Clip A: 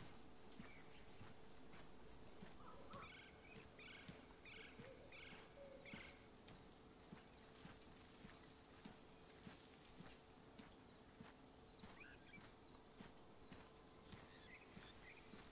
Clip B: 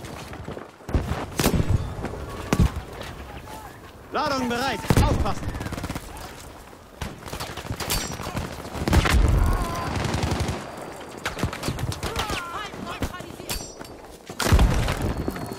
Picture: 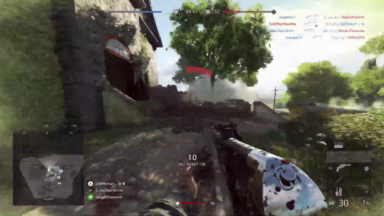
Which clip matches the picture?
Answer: B